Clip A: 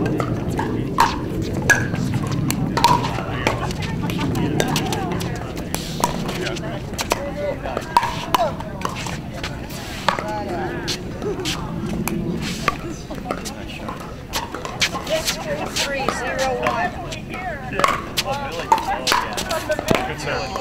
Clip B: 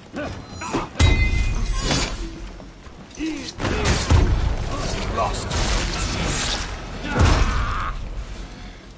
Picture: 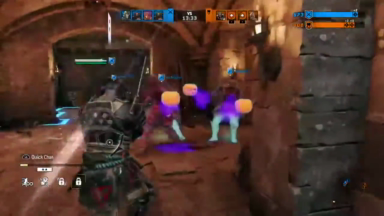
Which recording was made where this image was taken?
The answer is B